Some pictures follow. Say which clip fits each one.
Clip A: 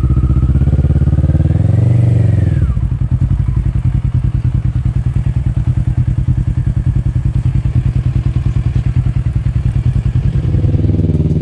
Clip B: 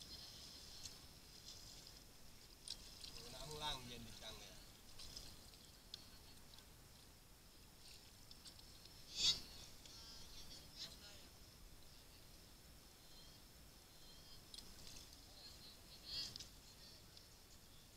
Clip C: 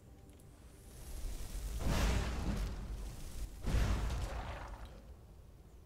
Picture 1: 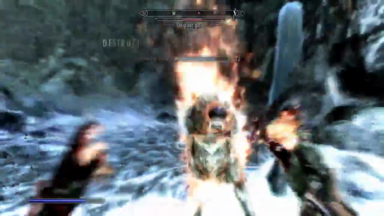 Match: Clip C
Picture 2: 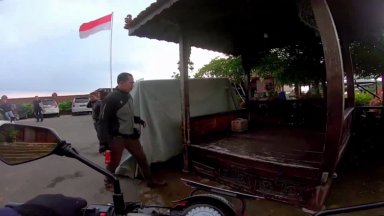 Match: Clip A